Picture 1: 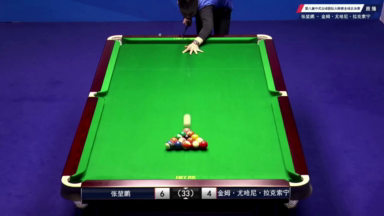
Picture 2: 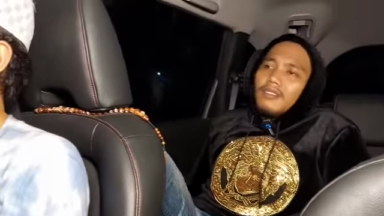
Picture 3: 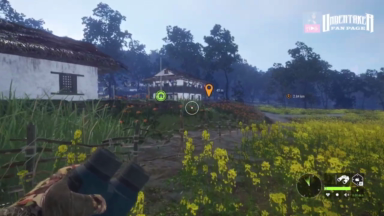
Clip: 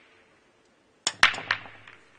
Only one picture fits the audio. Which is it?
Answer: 1